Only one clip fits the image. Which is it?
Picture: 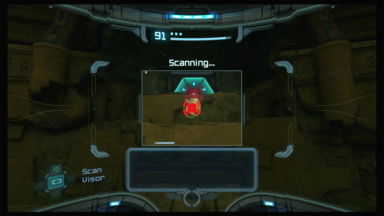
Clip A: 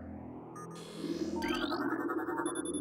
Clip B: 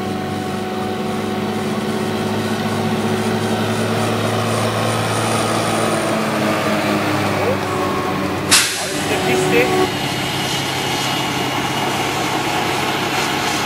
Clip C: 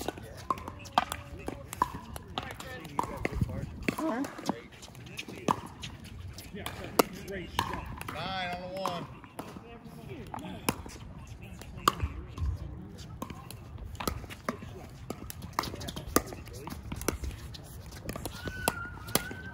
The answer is A